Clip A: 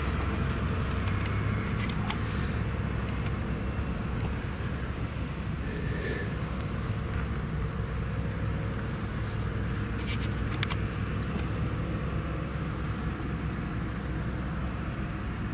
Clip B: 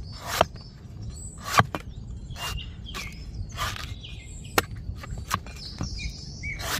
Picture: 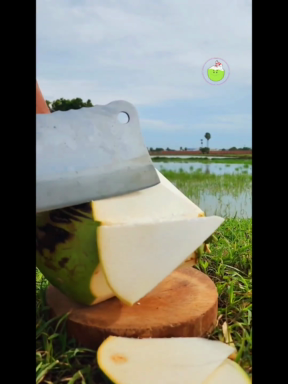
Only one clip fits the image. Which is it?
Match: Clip B